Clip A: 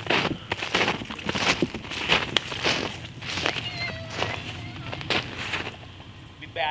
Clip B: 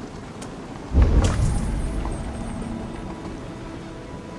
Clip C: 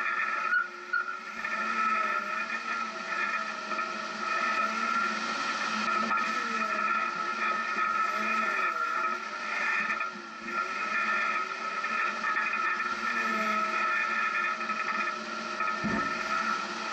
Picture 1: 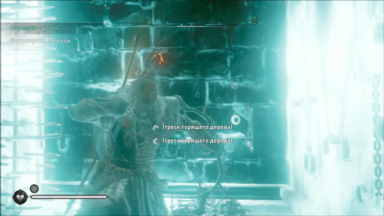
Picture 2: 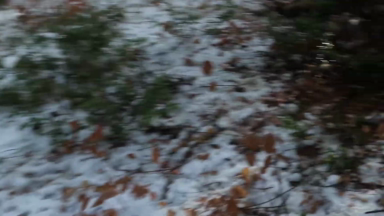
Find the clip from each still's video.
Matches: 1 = B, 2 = A